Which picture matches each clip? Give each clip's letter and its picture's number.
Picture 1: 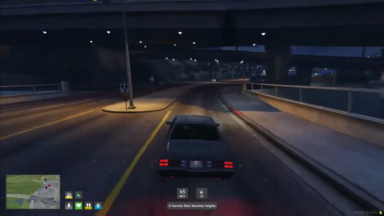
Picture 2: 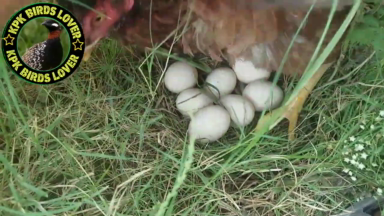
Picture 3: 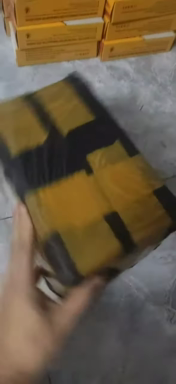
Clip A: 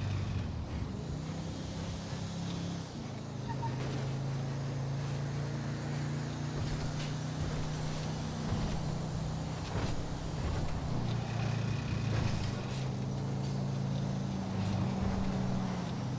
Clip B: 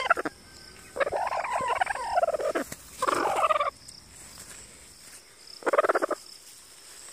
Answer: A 1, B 2